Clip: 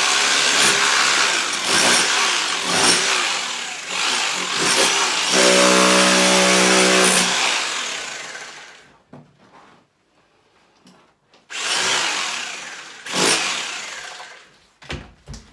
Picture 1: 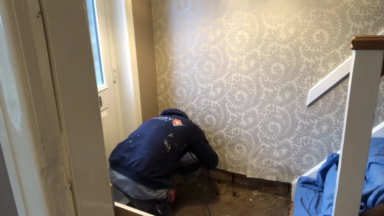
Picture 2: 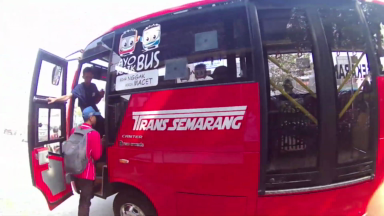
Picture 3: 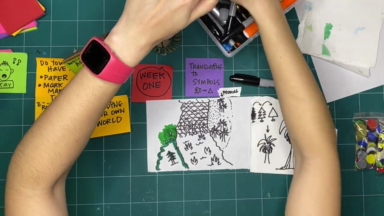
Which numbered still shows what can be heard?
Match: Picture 1